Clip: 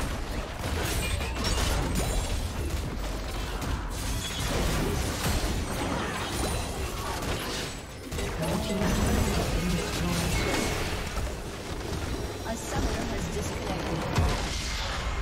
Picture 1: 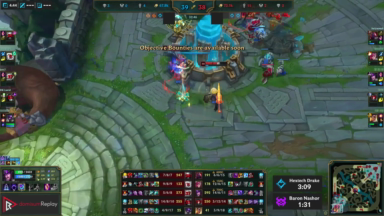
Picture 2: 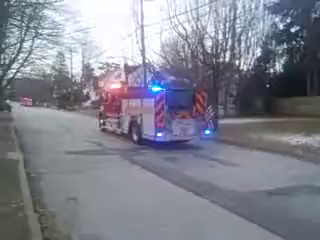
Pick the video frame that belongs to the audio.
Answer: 1